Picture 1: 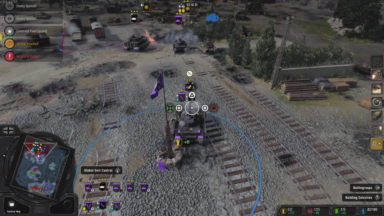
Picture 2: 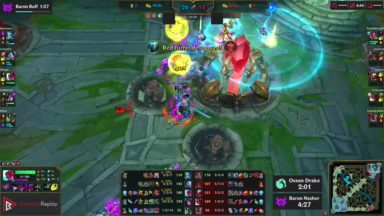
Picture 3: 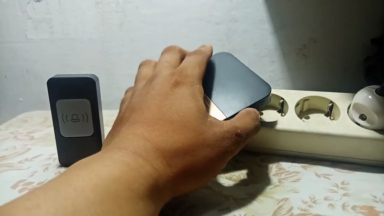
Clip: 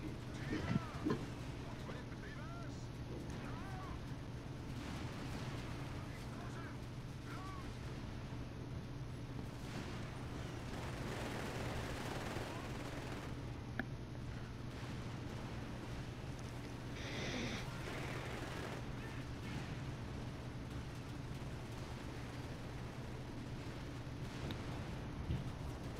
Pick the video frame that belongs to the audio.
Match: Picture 1